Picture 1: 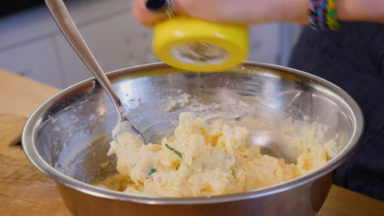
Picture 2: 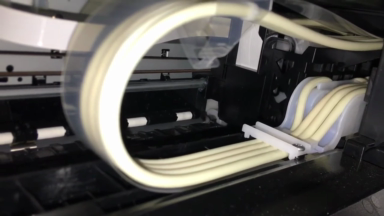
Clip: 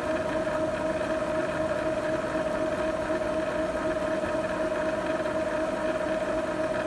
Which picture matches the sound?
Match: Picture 2